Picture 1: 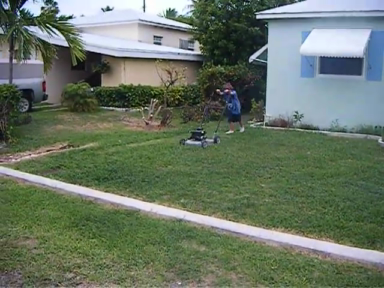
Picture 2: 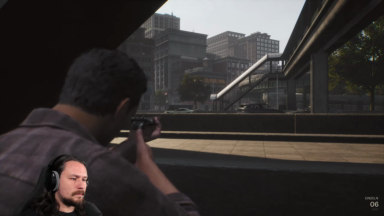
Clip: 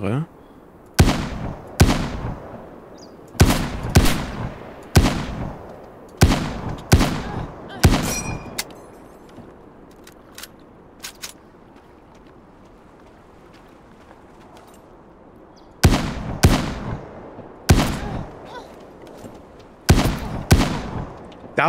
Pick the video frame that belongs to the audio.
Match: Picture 2